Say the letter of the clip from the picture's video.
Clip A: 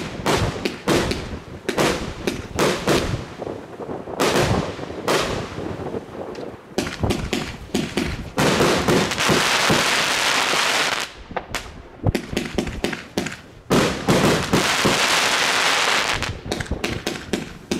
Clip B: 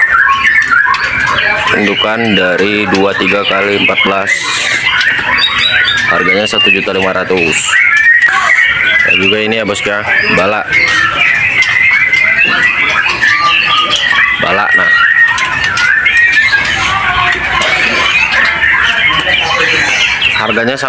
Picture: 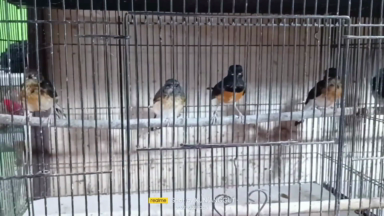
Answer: B